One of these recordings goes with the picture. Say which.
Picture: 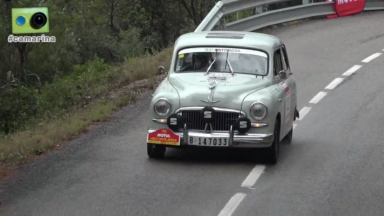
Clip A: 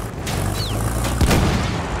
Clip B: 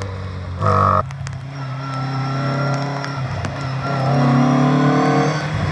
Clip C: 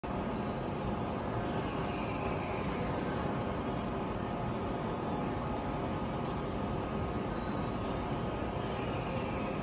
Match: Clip B